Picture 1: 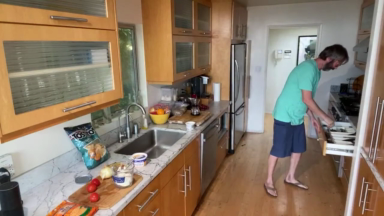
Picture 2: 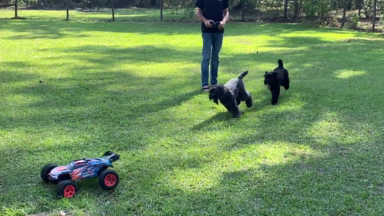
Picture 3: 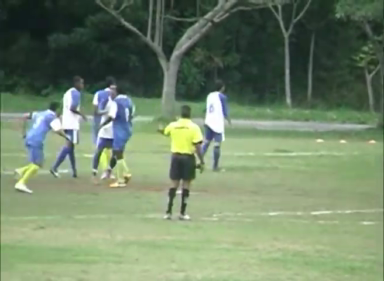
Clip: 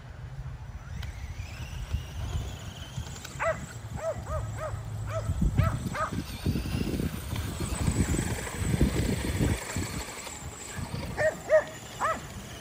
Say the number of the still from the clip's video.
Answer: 2